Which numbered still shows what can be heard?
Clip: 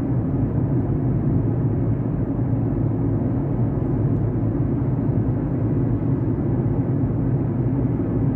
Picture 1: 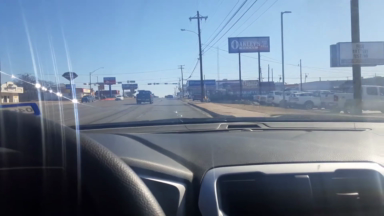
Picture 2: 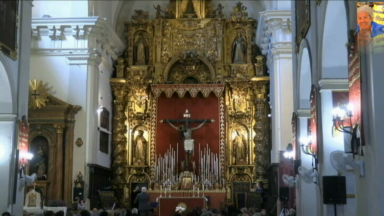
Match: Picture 1